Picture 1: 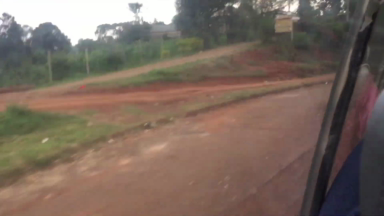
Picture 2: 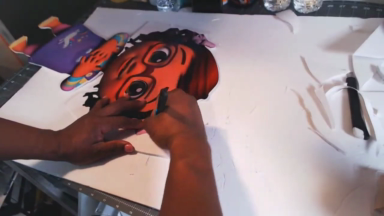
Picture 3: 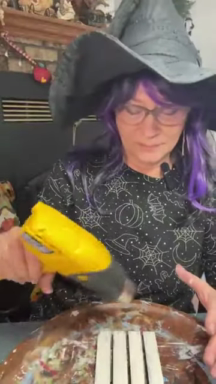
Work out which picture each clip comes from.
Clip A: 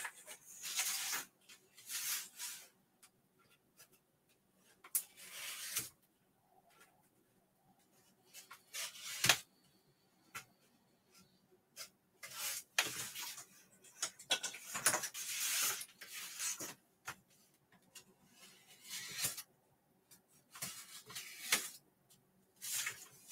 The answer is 2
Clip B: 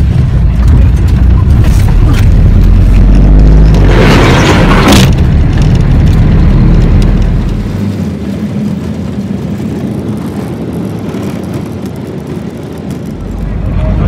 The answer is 1